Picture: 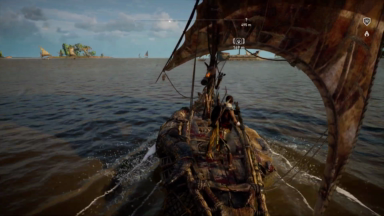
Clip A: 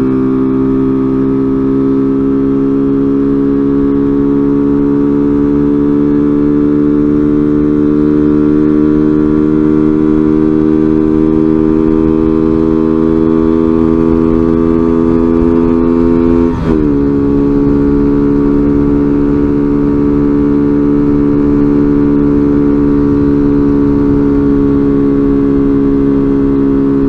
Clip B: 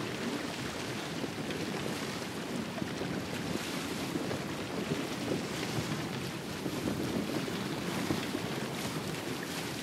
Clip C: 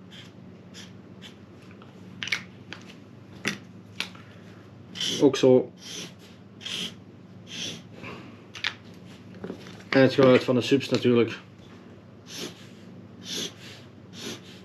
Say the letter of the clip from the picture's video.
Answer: B